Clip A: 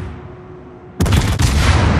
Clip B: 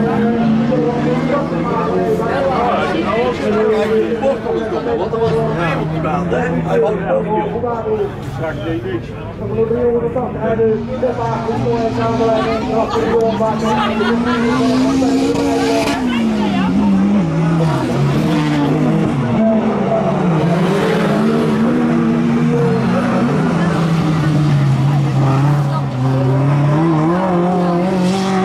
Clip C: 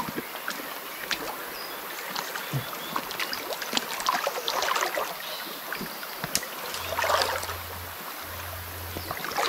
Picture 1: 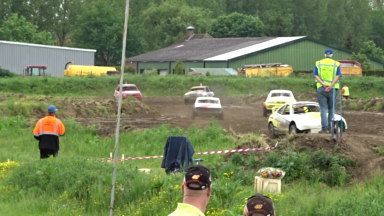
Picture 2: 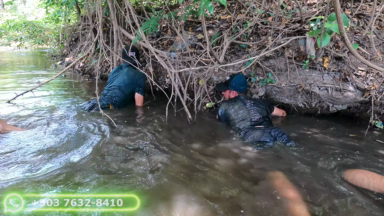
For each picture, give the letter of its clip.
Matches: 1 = B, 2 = C